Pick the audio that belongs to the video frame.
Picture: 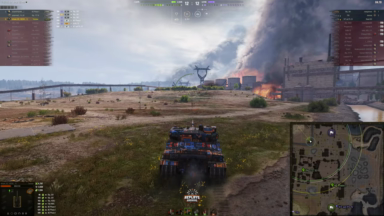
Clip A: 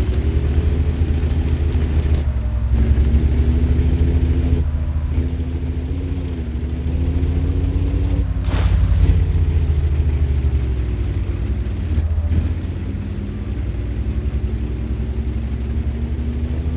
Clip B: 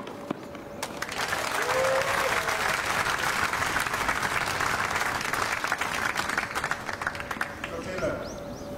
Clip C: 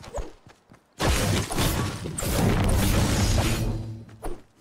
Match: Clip A